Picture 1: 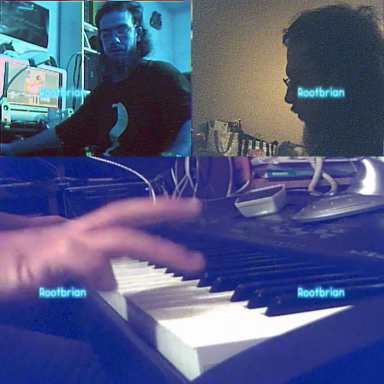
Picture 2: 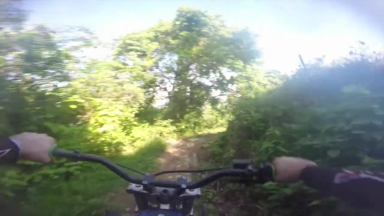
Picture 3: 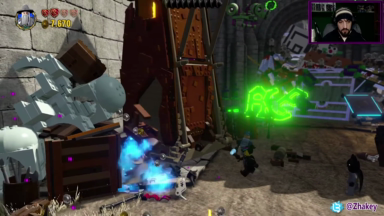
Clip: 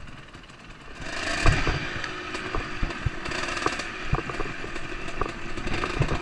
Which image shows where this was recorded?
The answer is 2